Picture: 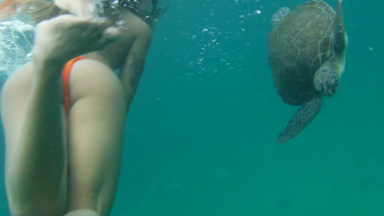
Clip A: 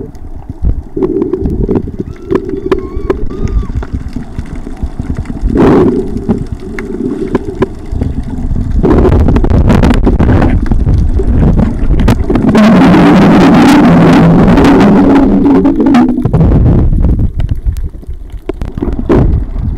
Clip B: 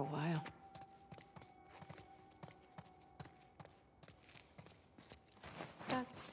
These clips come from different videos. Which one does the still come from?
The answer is A